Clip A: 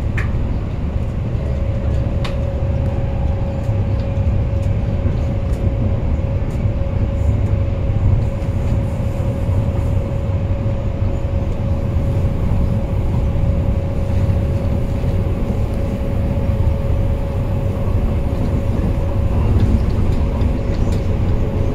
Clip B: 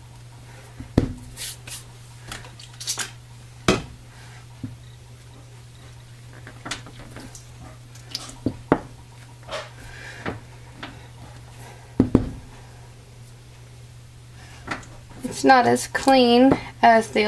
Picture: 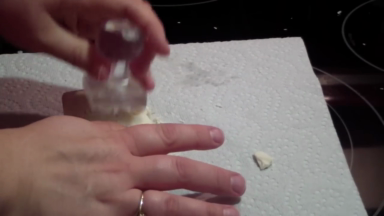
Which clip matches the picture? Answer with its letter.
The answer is B